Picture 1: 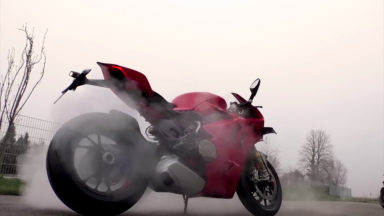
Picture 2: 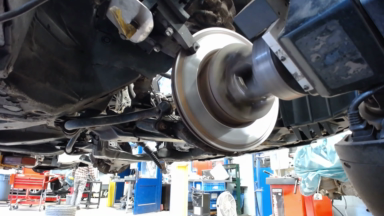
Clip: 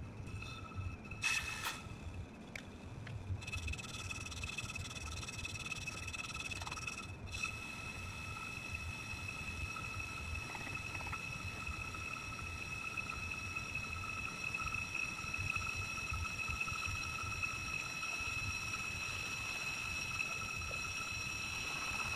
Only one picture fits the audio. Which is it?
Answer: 2